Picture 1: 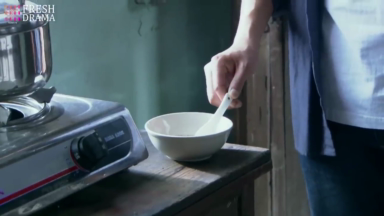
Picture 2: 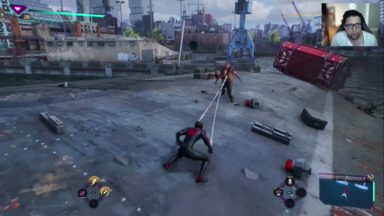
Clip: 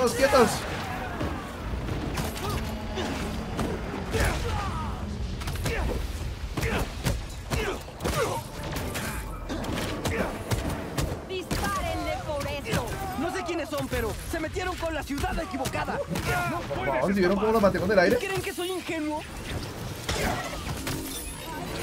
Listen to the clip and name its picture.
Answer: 2